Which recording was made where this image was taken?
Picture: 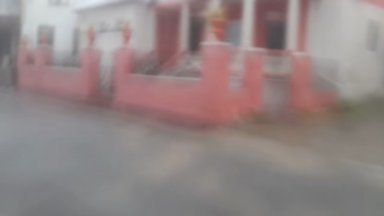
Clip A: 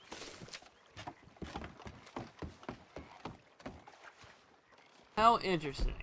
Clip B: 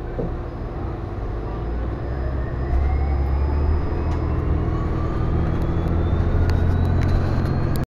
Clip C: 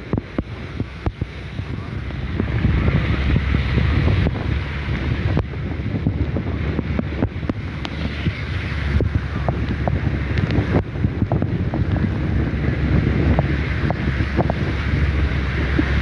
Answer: C